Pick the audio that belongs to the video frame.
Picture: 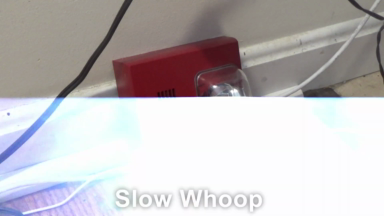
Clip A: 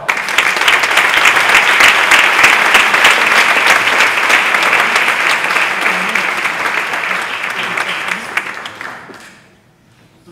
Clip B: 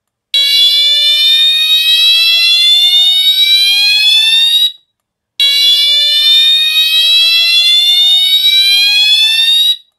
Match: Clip B